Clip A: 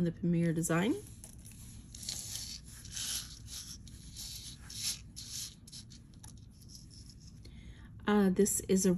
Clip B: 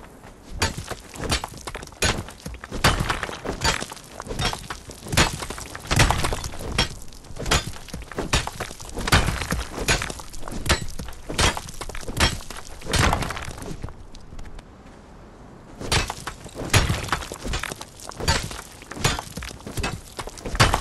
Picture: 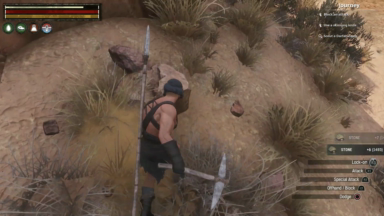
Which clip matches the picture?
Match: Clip B